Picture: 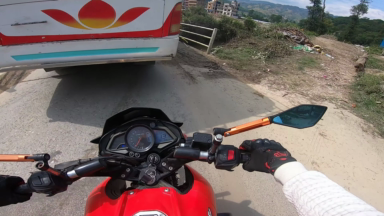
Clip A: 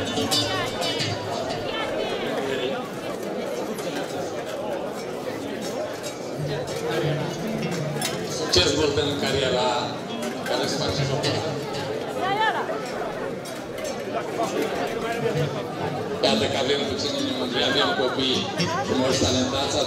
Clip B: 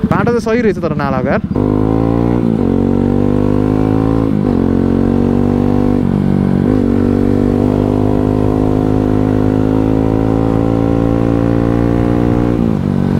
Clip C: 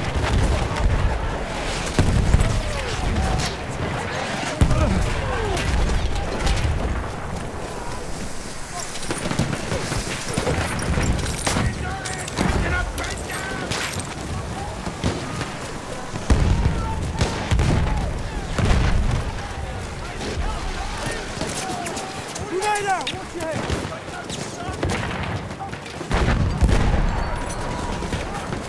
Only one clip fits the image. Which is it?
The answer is B